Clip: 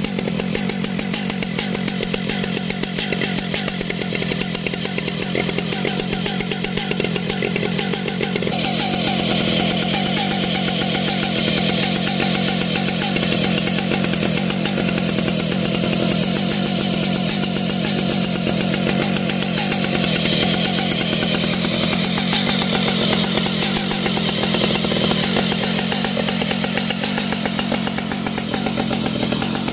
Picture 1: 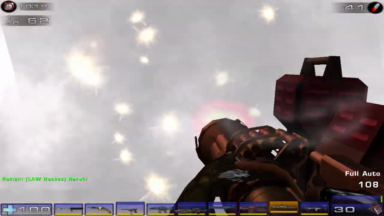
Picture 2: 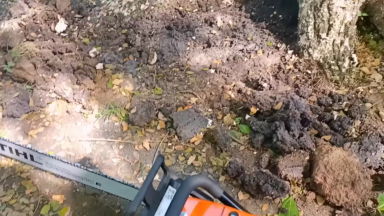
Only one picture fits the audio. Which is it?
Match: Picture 2